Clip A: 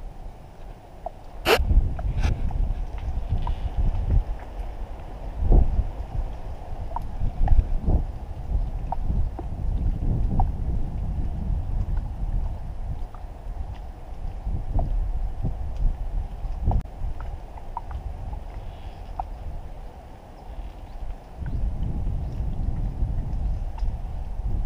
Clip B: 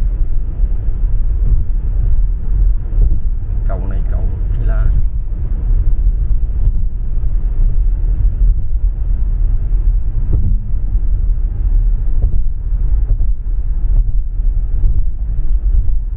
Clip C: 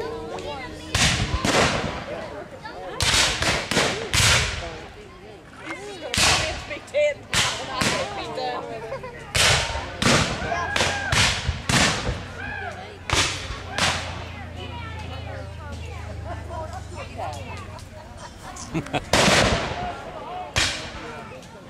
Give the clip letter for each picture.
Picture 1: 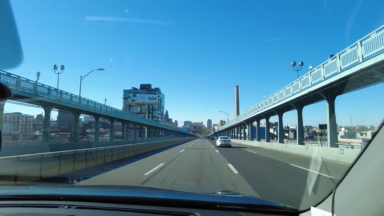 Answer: B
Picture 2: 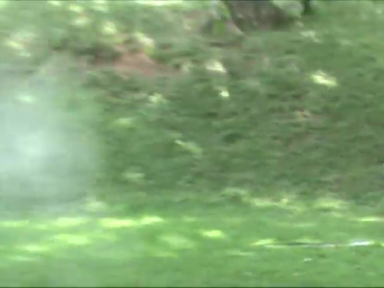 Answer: C